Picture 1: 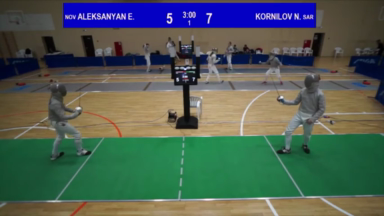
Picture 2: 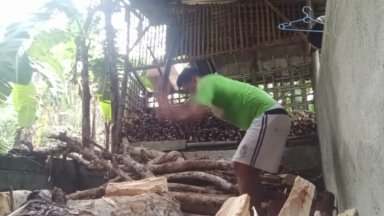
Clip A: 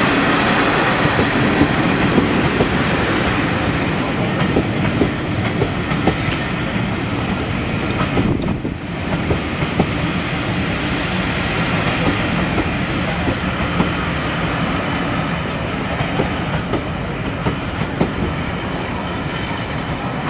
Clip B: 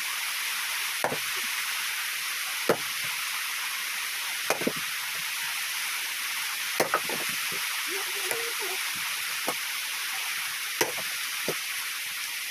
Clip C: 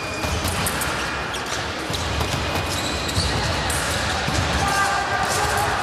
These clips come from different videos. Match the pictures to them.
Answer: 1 C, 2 B